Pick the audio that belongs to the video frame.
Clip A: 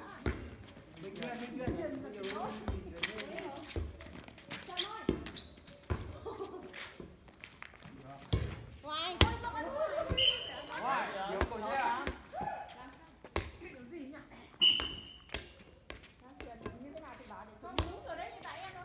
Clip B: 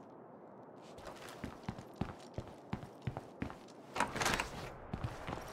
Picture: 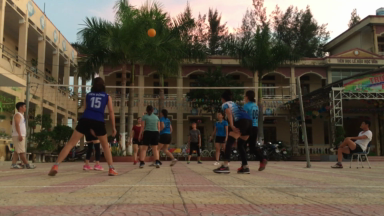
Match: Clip A